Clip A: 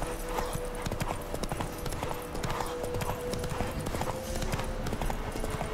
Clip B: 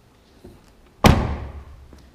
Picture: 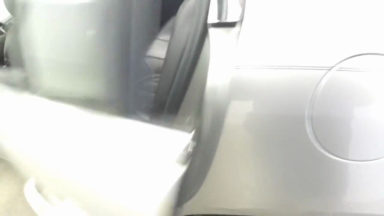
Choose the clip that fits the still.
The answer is B